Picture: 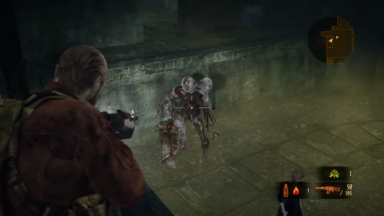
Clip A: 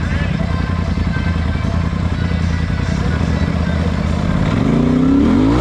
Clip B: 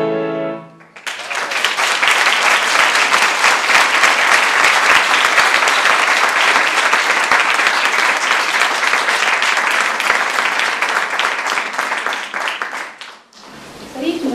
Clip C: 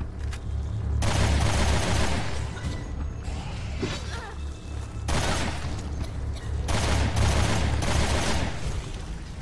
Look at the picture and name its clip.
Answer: C